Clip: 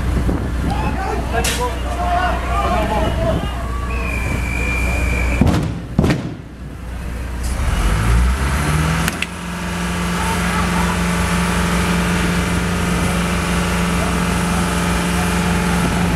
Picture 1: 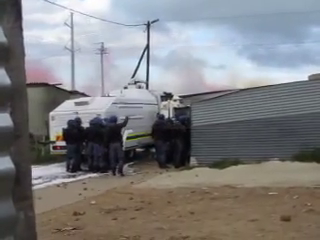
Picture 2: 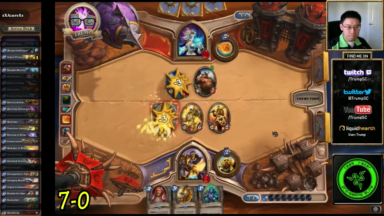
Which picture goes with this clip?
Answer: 1